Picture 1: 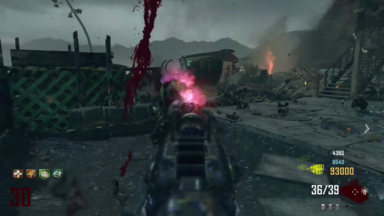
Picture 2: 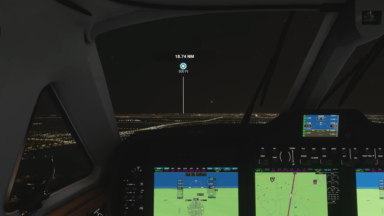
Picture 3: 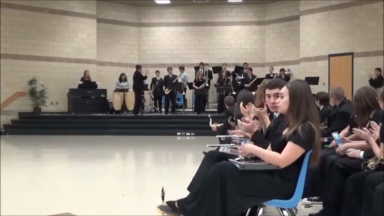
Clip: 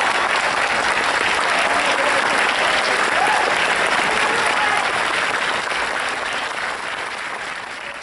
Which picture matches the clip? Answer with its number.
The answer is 3